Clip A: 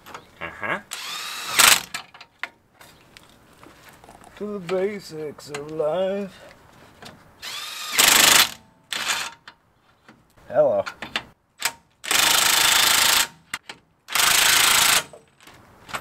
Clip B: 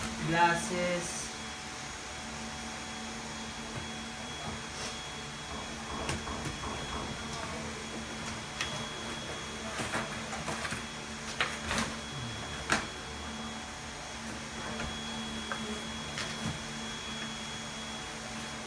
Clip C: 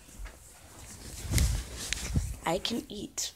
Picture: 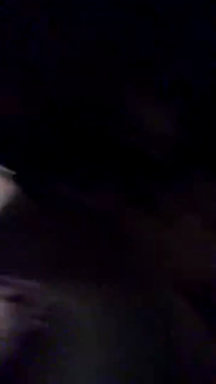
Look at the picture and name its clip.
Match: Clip C